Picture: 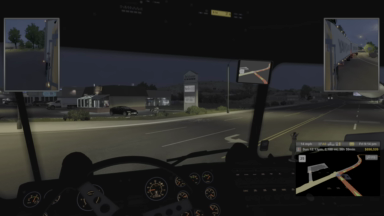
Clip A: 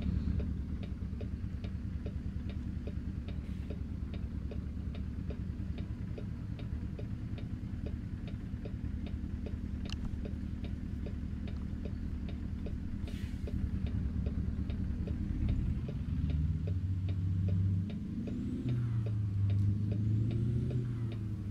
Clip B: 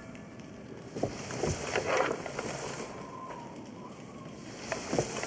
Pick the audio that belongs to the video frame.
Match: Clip A